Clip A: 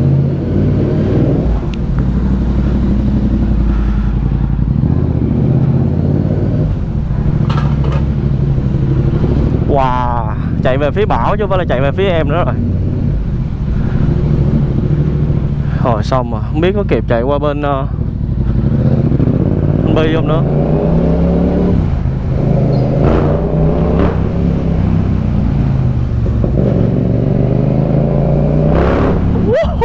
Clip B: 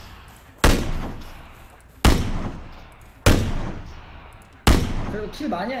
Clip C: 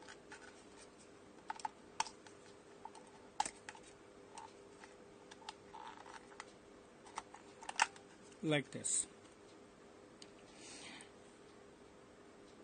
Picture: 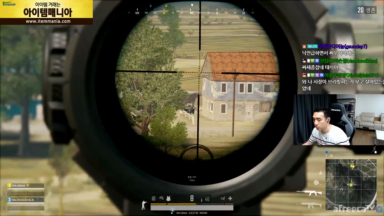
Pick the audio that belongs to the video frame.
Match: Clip B